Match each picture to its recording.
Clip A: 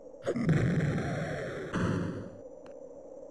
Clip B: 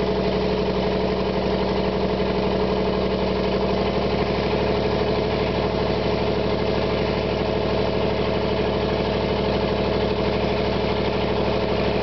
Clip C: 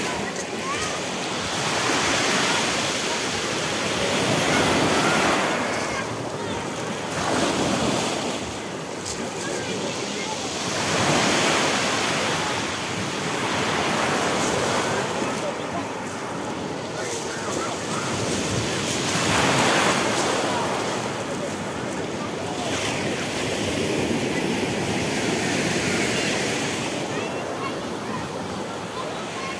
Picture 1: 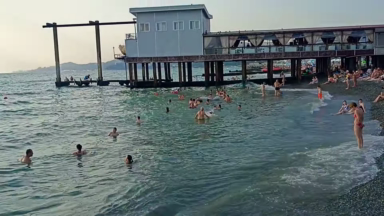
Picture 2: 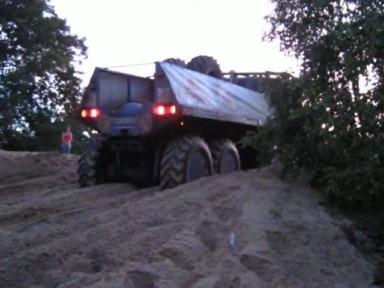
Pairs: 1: C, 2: B